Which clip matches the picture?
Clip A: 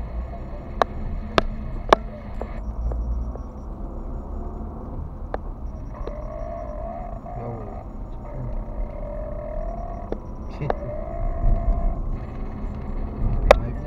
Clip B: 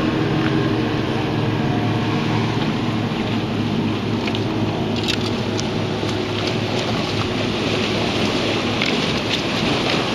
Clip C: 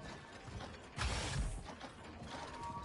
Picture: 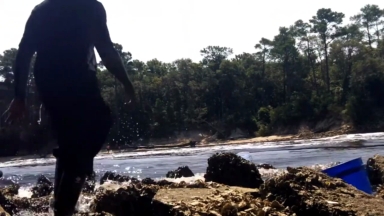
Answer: B